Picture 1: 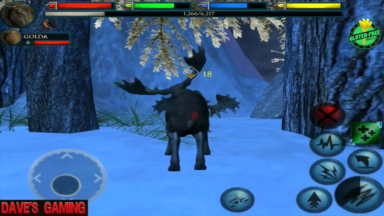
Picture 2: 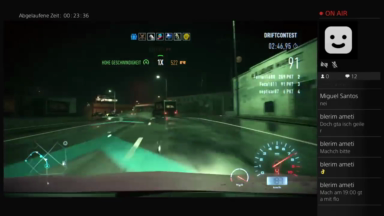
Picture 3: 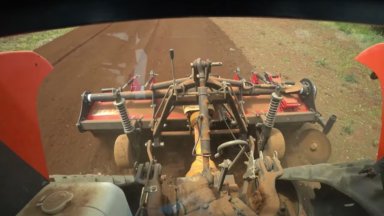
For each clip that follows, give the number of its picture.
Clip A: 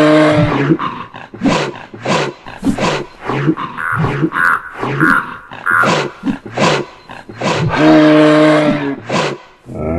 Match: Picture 1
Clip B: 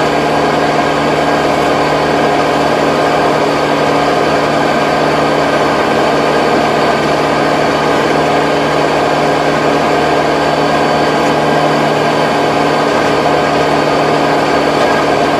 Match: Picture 3